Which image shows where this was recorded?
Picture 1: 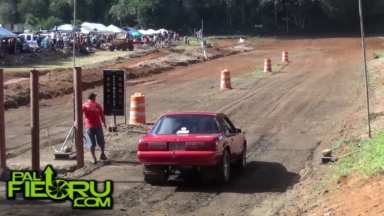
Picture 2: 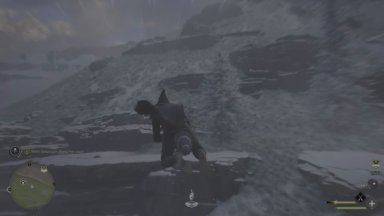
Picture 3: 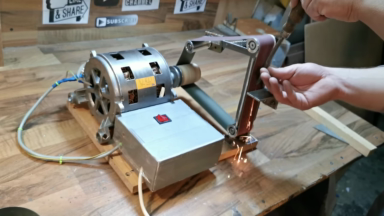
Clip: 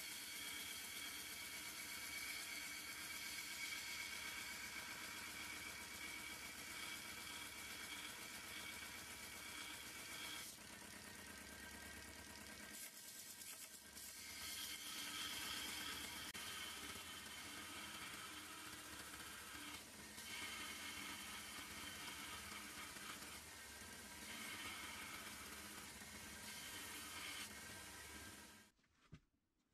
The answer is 3